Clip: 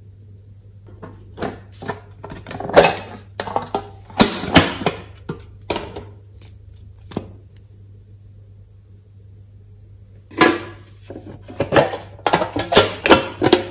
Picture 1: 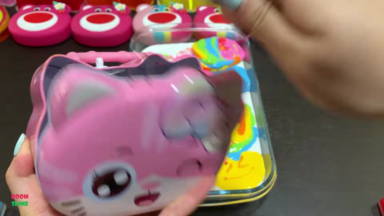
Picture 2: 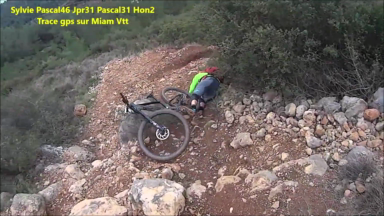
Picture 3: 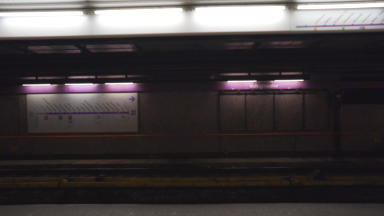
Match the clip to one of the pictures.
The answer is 1